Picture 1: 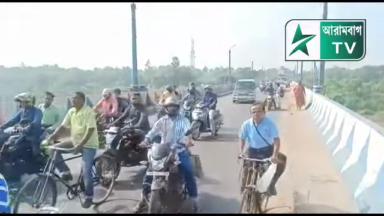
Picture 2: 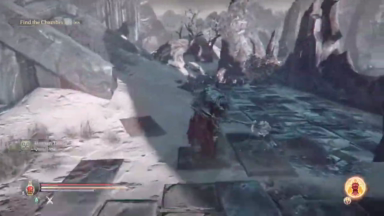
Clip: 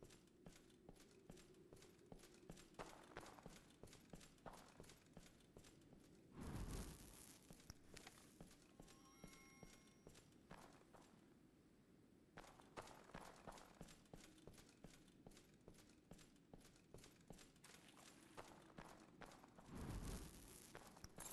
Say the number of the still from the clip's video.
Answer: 2